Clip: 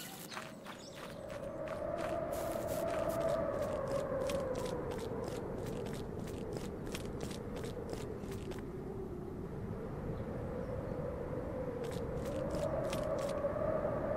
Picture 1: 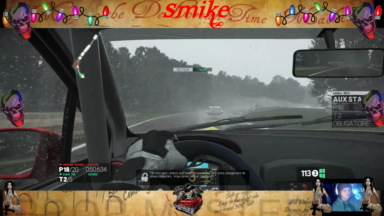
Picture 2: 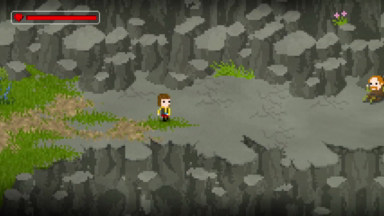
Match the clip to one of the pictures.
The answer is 2